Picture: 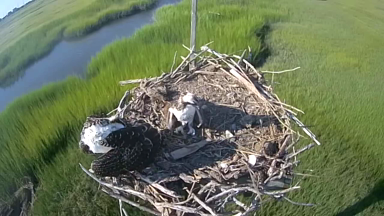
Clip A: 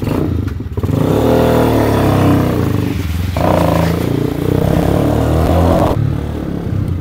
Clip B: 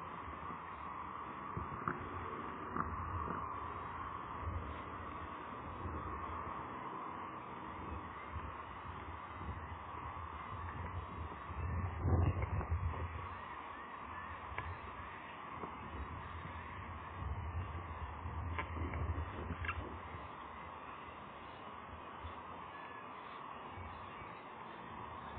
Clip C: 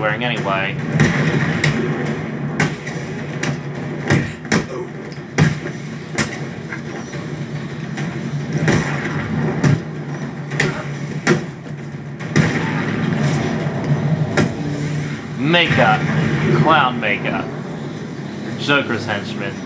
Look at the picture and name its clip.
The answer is B